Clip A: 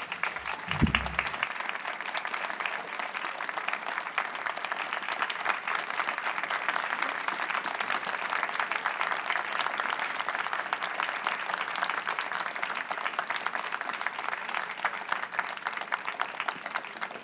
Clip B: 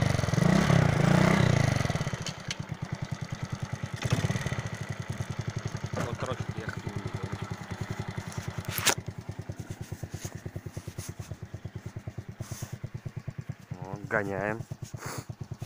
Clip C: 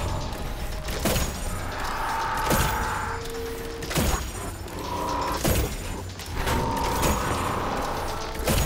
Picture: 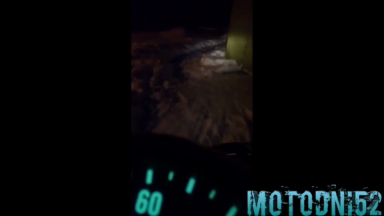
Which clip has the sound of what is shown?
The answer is B